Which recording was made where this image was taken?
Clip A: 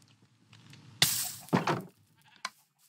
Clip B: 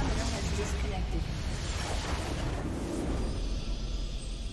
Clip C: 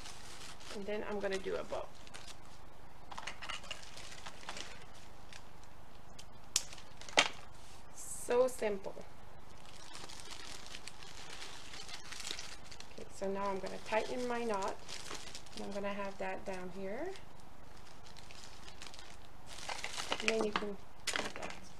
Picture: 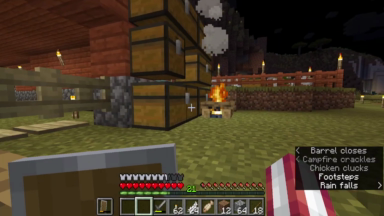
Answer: A